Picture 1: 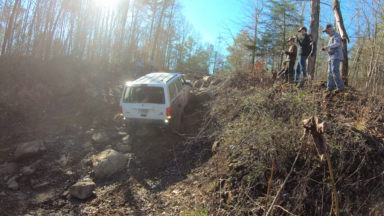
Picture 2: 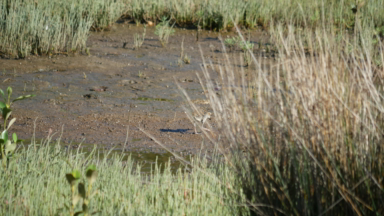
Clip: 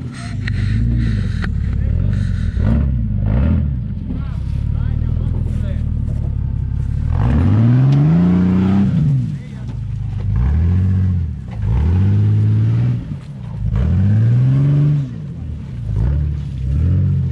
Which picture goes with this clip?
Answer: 1